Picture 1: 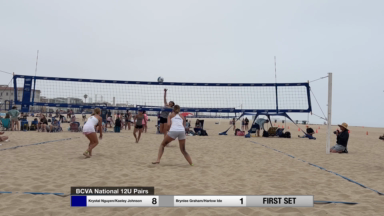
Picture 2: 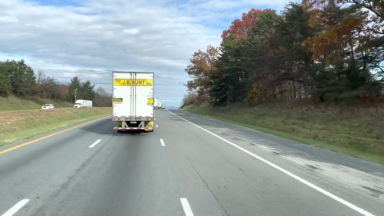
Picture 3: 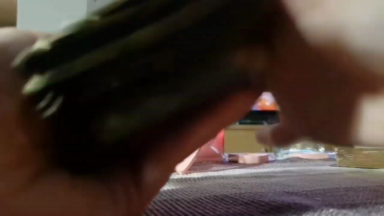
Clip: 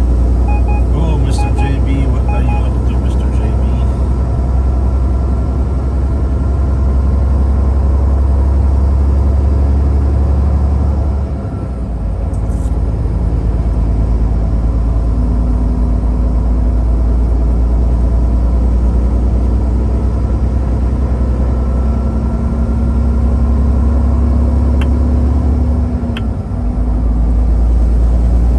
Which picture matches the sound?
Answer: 2